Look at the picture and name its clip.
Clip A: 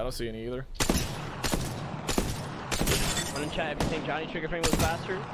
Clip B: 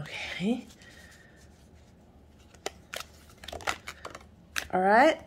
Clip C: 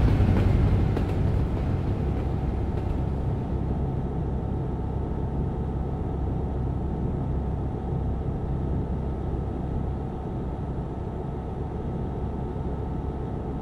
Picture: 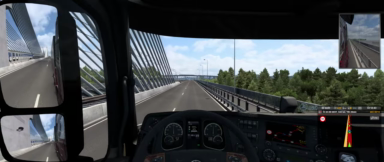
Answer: C